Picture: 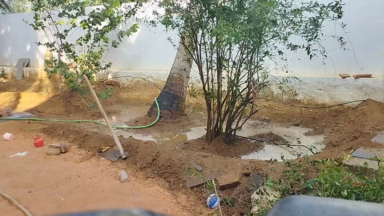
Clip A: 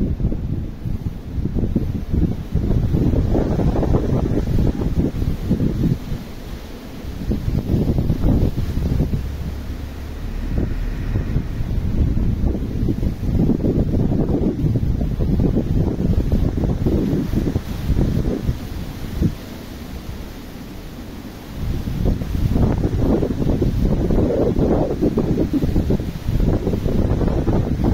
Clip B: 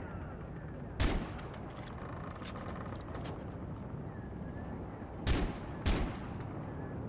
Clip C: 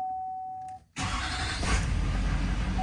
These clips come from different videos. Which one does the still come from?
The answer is A